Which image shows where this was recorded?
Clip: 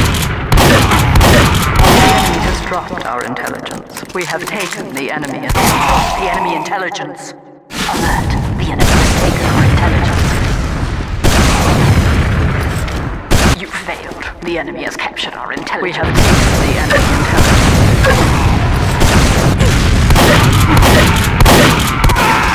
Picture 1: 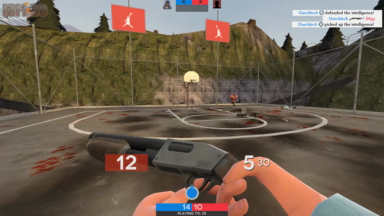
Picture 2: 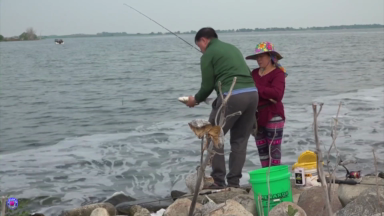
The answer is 1